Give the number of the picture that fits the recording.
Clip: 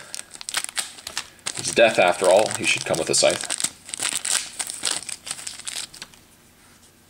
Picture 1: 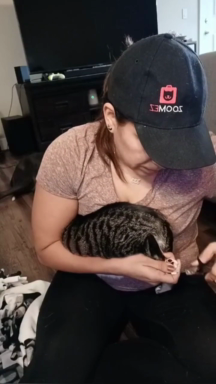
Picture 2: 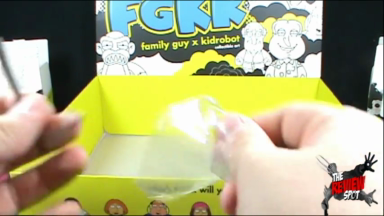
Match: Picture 2